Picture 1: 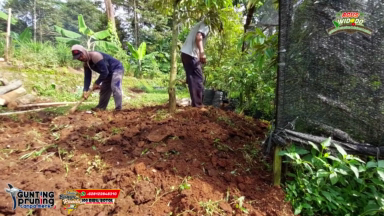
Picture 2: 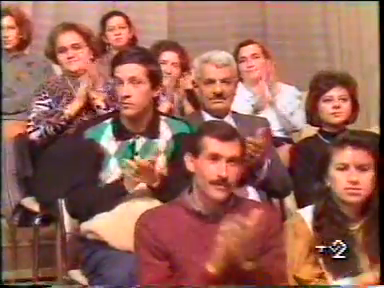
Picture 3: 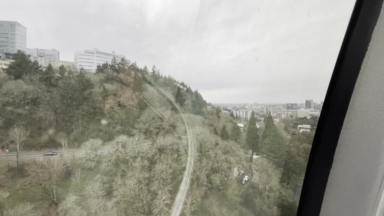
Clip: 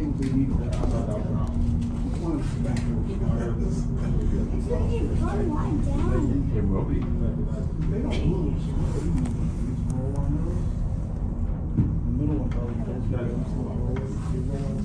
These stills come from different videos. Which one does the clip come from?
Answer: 3